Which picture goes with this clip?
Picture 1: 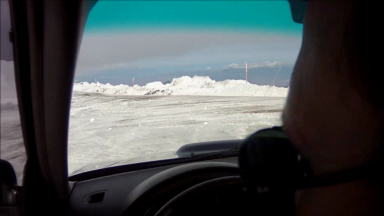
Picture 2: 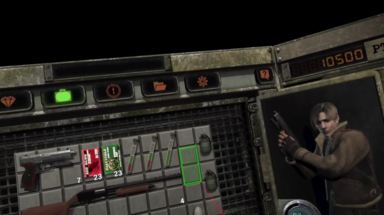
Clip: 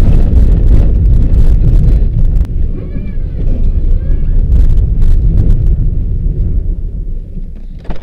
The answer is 1